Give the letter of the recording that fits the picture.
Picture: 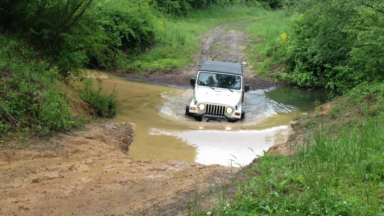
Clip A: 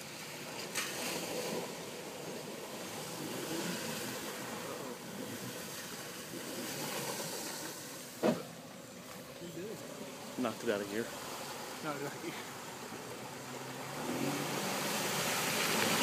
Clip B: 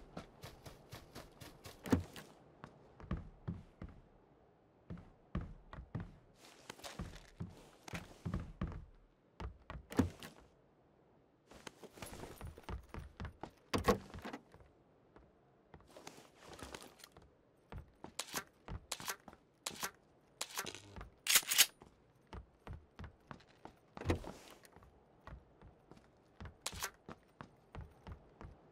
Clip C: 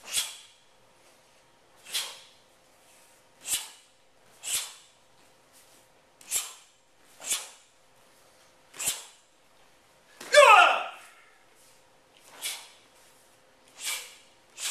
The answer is A